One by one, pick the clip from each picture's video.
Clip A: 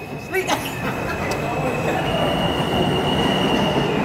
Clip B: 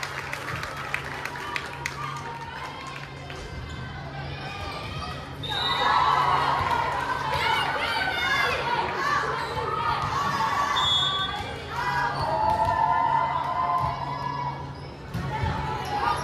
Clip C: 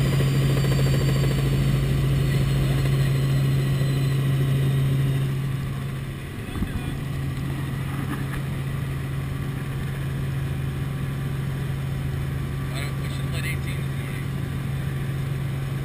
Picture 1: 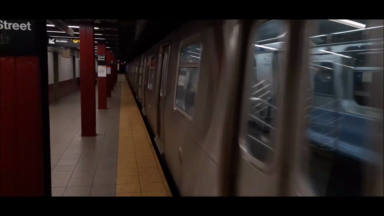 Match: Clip A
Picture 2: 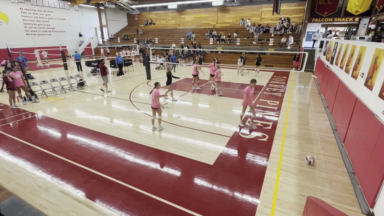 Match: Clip B